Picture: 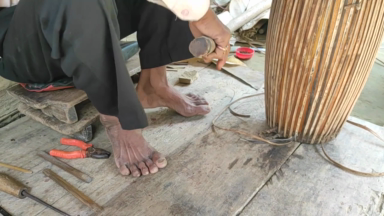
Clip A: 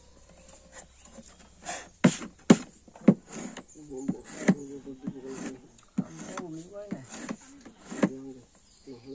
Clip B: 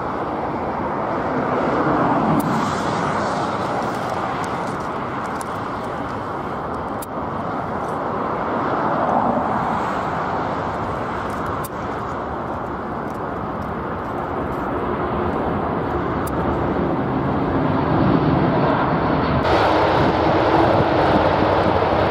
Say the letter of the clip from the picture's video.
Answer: A